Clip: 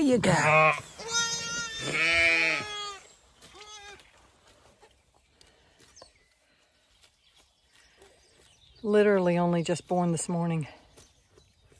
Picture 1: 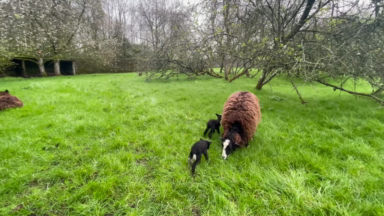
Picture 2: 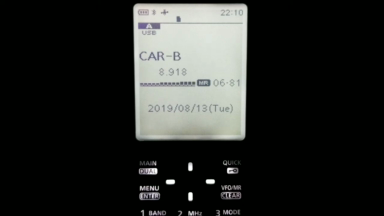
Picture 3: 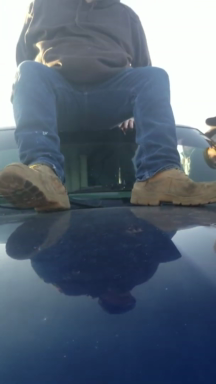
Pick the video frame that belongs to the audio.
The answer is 1